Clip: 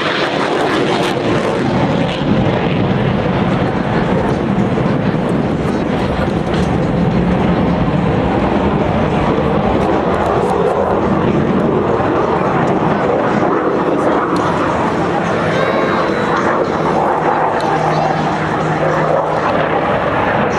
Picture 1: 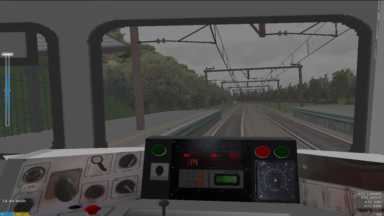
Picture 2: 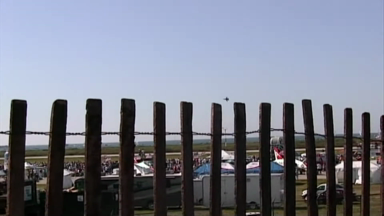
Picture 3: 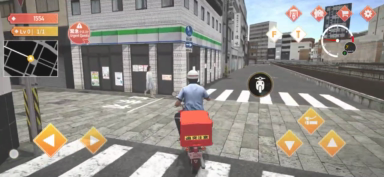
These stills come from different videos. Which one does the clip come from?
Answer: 2